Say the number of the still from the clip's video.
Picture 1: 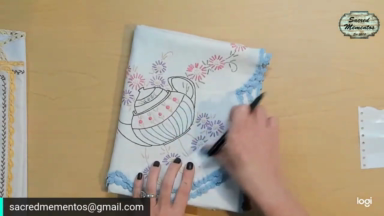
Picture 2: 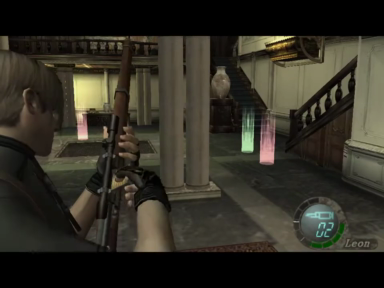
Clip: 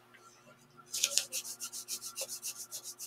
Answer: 1